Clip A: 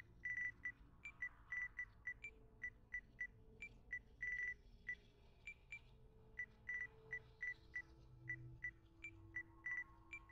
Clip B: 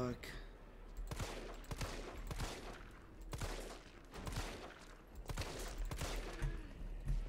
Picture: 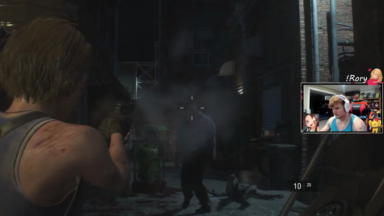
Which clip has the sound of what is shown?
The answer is B